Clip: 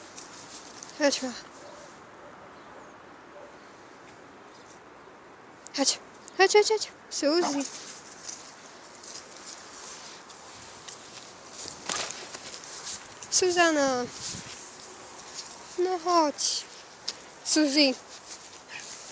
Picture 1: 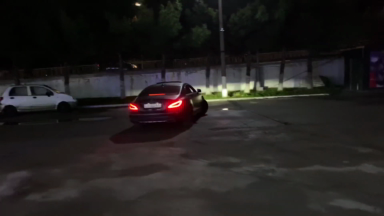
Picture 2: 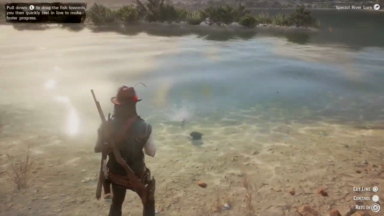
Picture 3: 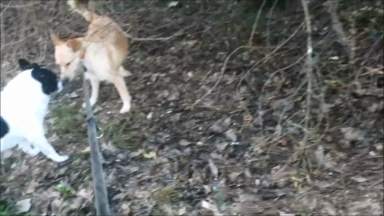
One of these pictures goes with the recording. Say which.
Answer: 3